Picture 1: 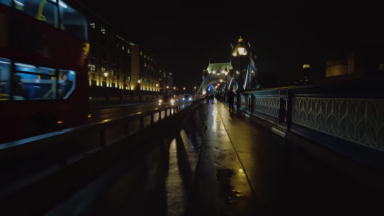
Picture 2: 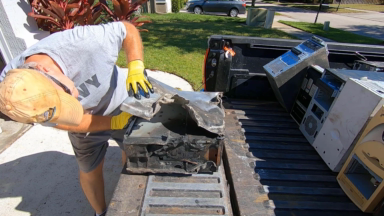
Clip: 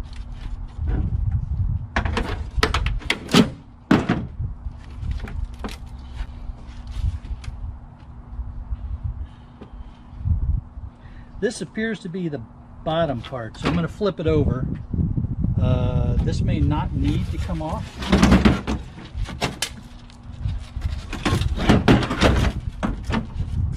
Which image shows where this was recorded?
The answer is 2